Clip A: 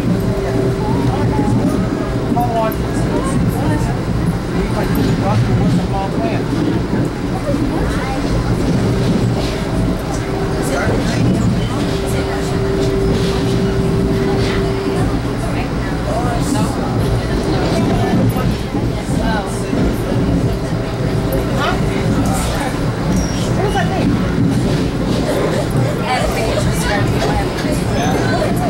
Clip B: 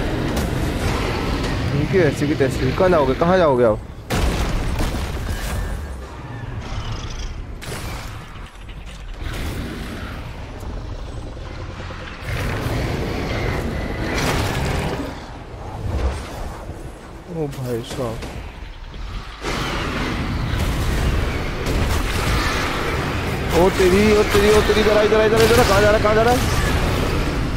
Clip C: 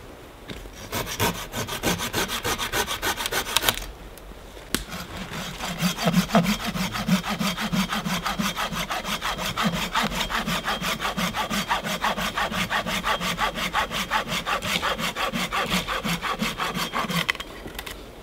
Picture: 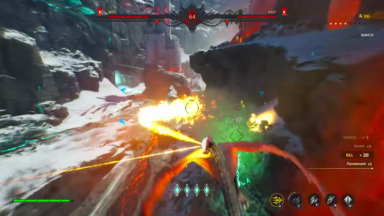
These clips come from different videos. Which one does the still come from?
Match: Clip B